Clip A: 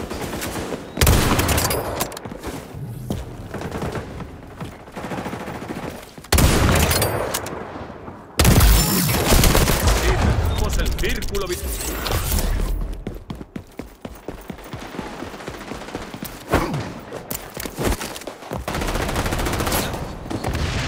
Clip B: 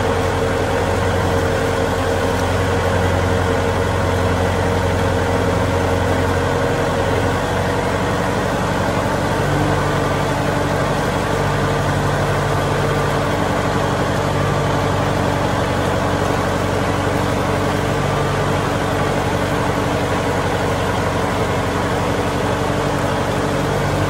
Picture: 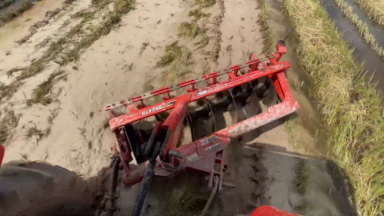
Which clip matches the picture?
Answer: B